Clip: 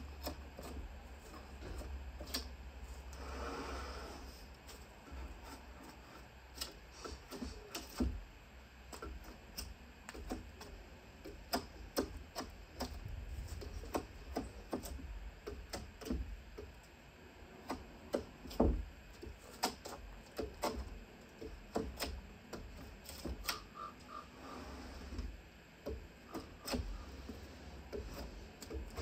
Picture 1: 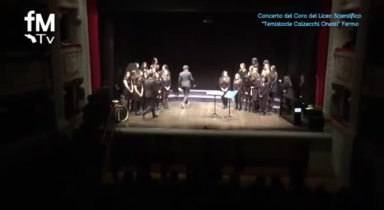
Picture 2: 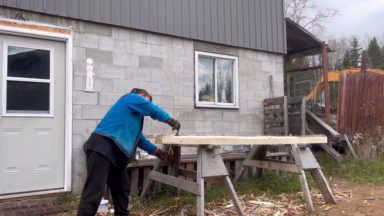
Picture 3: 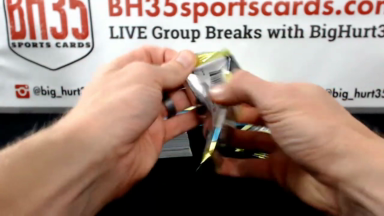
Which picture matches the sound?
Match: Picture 2